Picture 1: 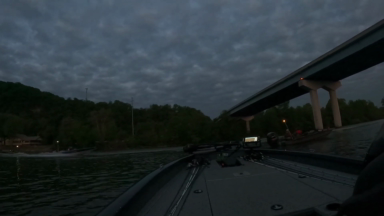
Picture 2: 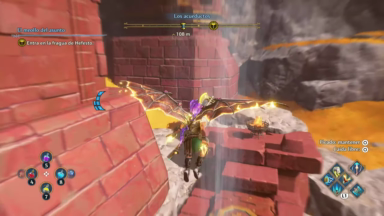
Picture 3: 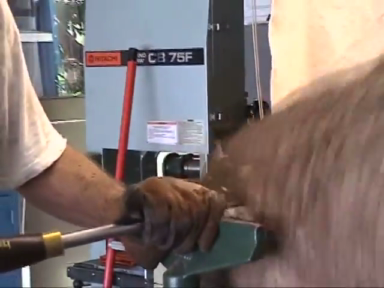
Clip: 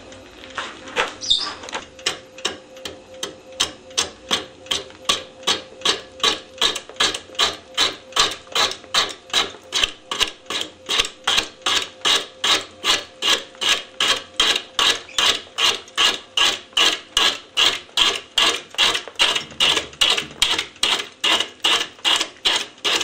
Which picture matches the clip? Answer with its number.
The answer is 3